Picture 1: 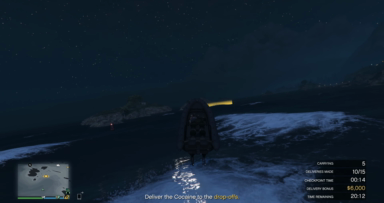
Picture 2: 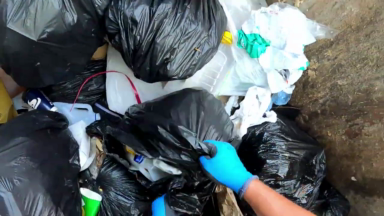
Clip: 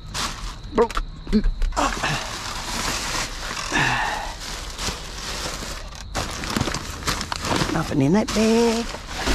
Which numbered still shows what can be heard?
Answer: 2